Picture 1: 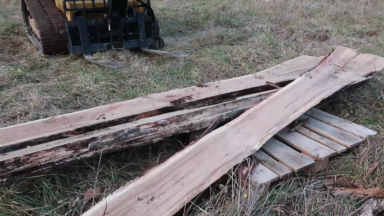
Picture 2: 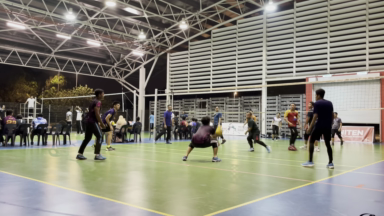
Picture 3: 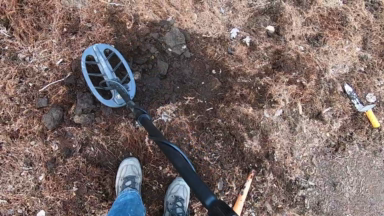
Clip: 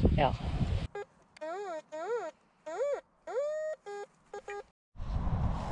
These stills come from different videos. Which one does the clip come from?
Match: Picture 3